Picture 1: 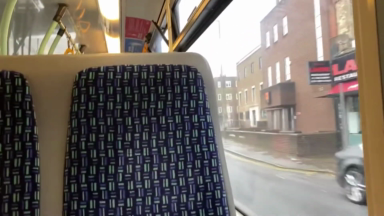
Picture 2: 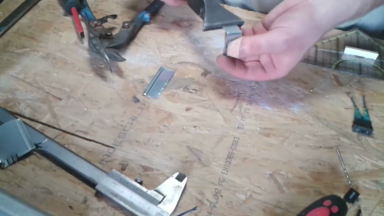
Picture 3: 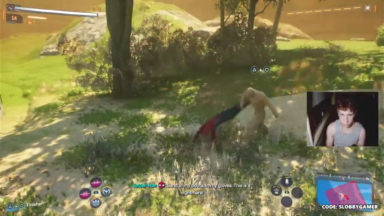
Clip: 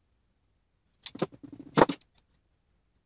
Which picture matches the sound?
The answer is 2